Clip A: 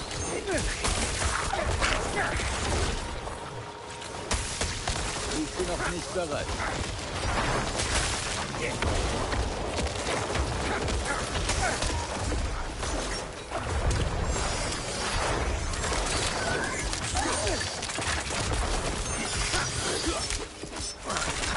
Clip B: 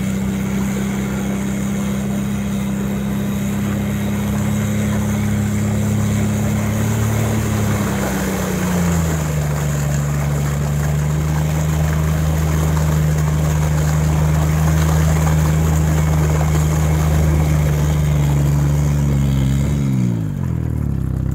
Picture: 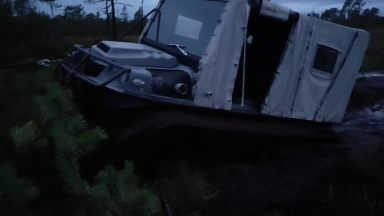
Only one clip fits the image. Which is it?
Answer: B